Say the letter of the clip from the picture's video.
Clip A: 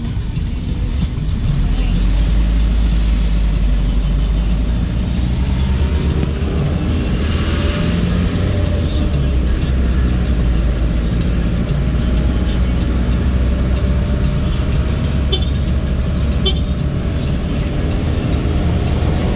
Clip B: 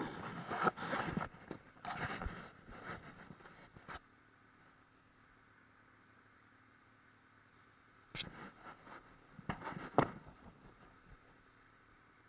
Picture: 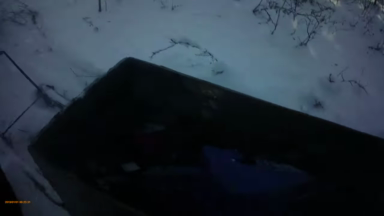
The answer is B